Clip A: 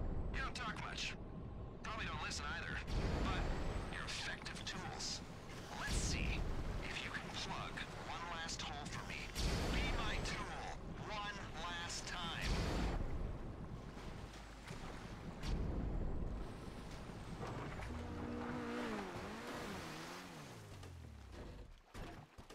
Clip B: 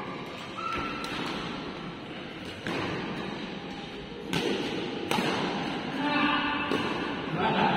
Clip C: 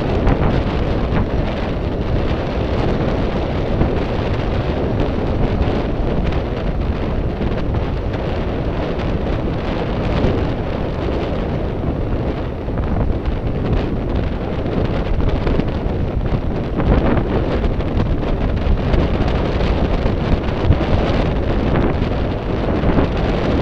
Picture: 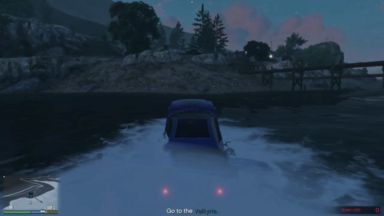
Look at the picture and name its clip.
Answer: A